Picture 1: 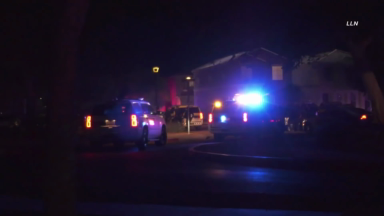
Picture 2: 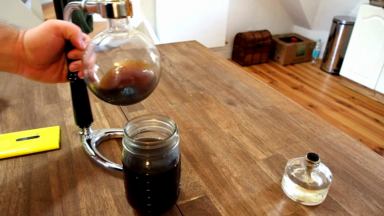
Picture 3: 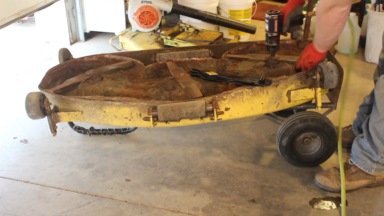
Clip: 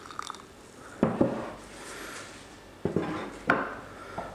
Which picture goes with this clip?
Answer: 2